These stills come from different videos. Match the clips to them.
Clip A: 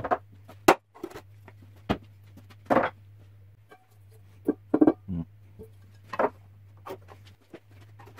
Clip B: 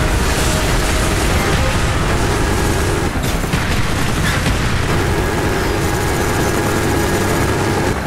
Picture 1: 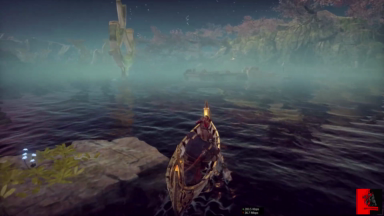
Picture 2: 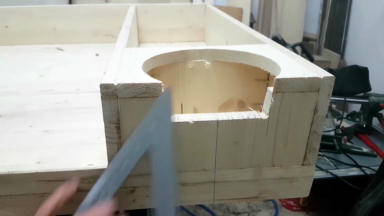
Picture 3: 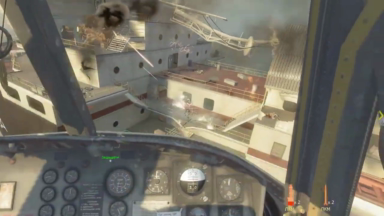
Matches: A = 2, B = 3